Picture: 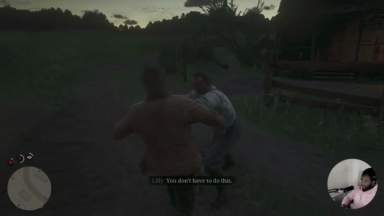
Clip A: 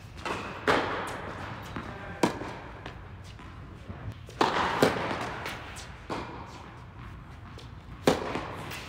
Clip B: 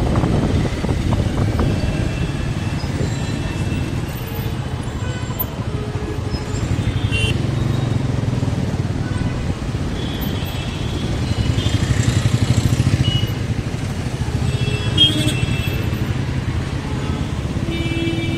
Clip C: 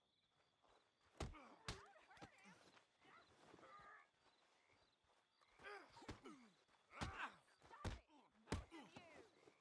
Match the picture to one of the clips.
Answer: C